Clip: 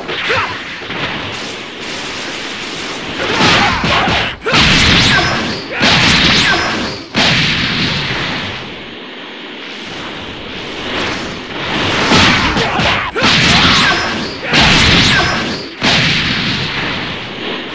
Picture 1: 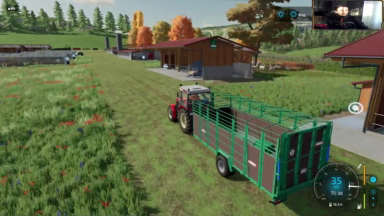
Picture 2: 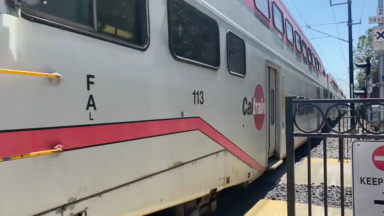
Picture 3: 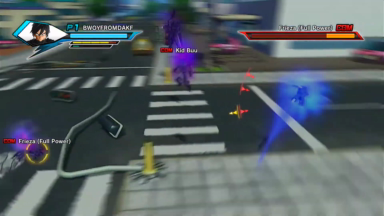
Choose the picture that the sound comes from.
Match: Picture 3